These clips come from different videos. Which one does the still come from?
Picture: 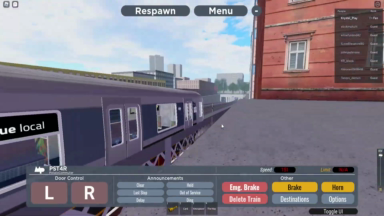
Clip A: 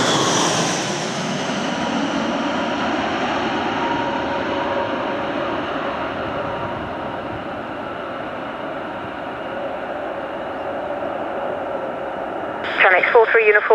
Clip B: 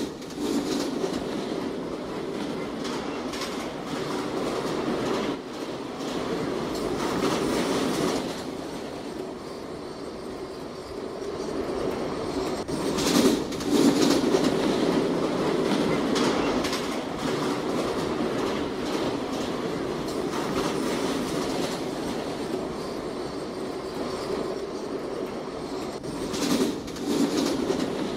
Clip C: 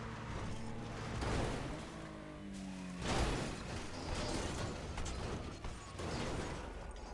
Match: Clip B